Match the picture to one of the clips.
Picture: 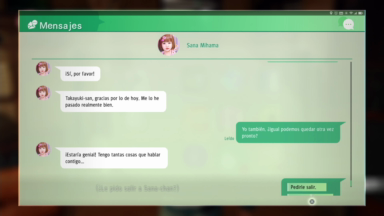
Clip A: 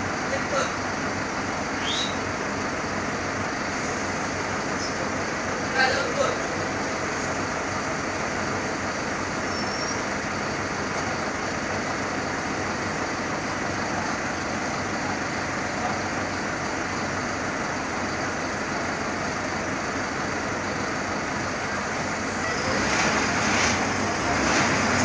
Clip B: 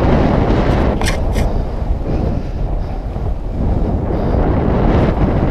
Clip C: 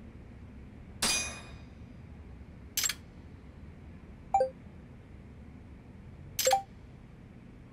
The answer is C